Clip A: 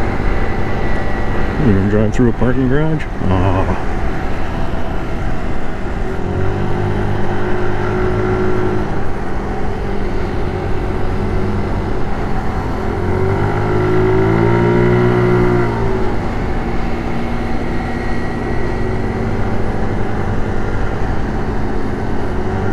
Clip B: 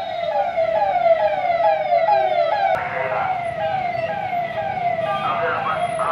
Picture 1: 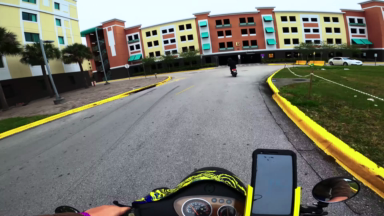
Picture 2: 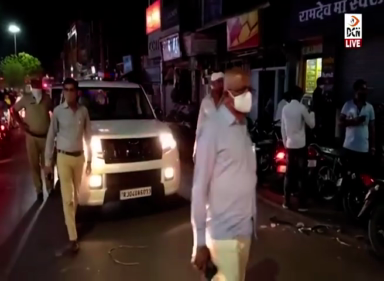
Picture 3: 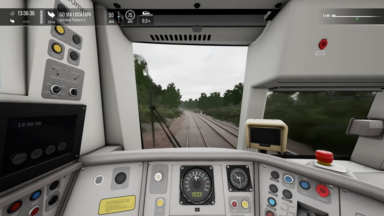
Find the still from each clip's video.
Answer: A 1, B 2